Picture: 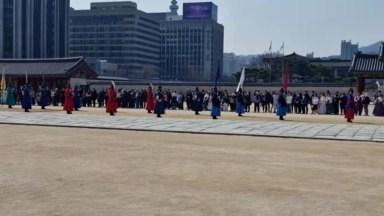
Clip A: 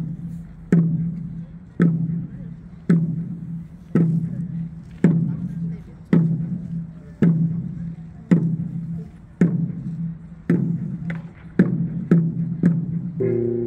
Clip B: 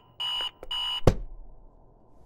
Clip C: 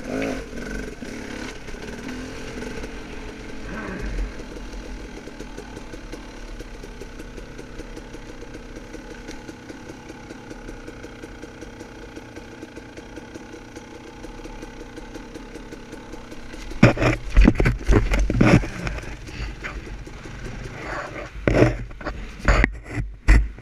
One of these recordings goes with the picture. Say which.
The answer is A